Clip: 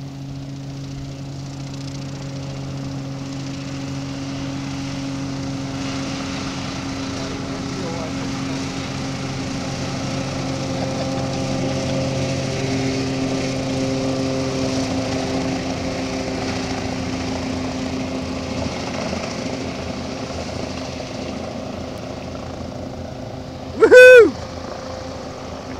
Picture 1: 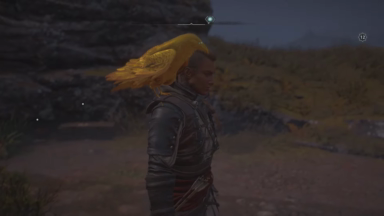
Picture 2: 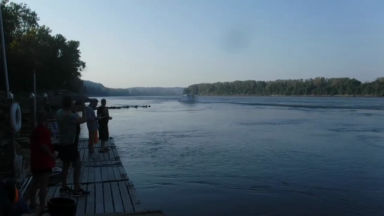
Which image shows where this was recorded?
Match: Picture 2